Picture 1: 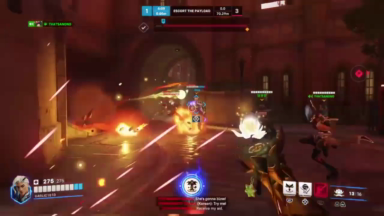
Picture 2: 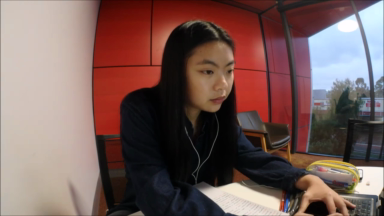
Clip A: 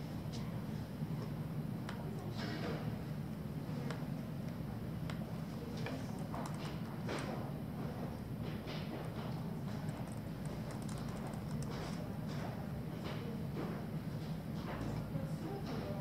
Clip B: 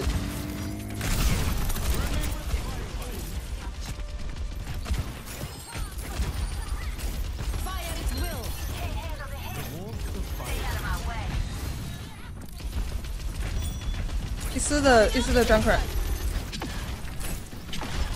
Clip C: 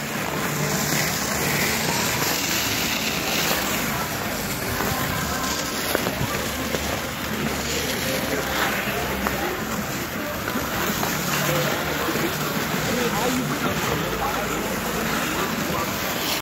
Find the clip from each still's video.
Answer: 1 B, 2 A